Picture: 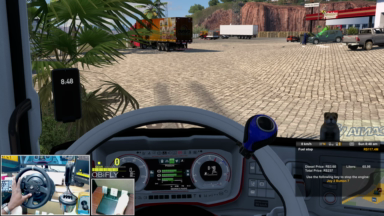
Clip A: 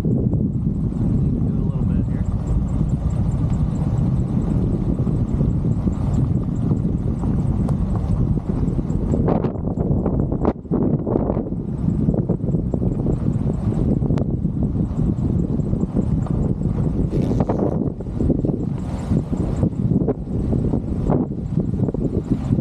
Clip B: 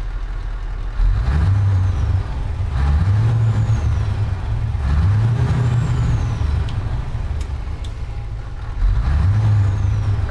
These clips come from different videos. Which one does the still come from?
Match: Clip B